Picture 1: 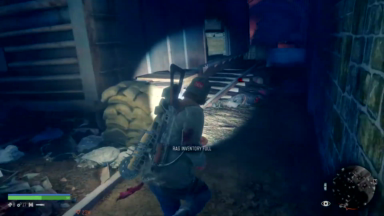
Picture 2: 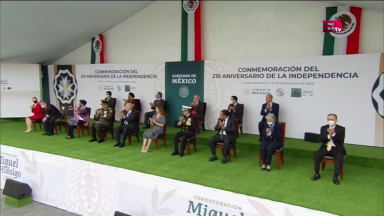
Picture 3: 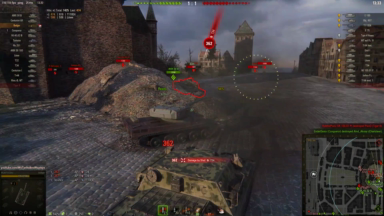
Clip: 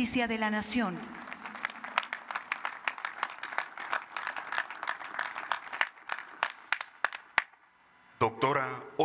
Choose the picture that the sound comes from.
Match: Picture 2